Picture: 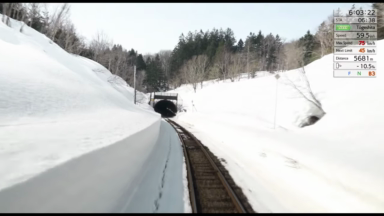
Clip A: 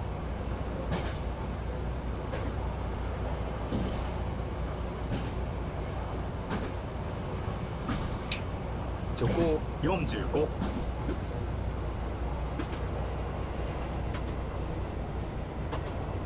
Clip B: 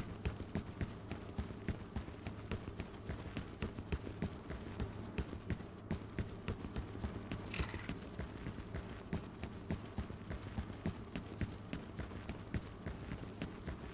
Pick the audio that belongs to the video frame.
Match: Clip A